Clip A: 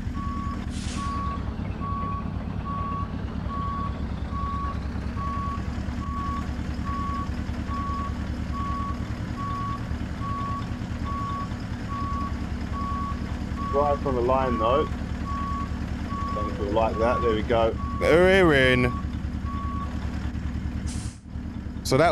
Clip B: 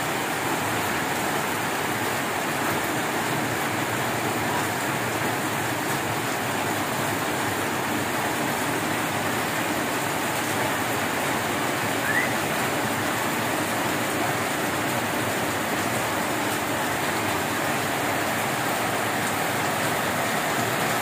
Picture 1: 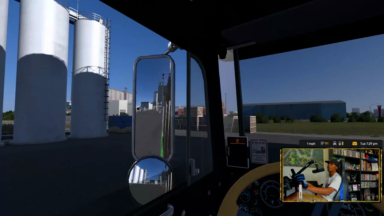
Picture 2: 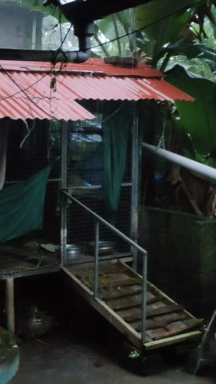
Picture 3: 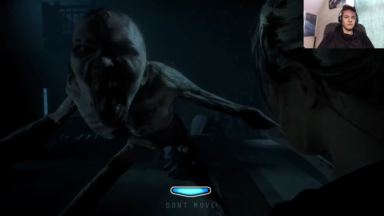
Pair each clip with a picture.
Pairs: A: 1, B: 2